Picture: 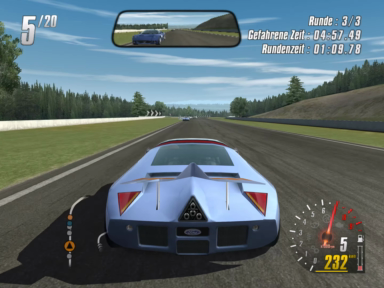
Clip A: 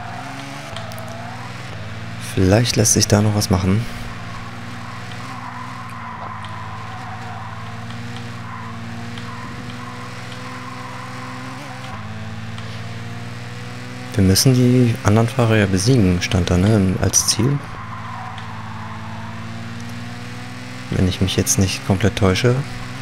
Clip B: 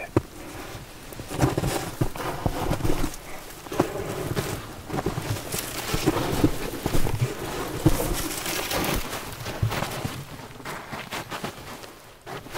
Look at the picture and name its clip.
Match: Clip A